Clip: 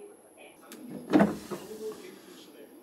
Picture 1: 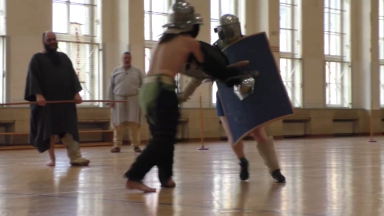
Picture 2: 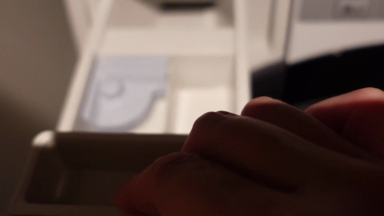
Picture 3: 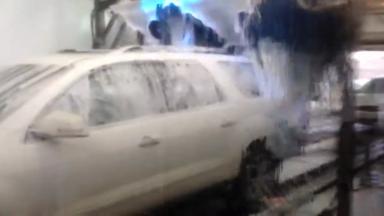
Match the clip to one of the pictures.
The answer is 2